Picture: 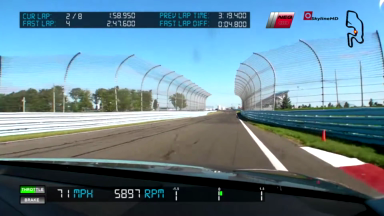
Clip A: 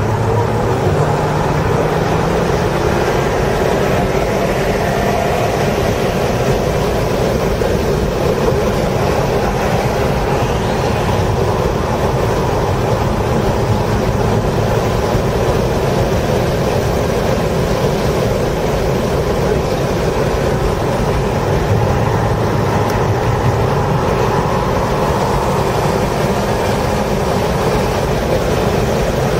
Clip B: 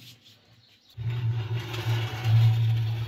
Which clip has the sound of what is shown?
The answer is A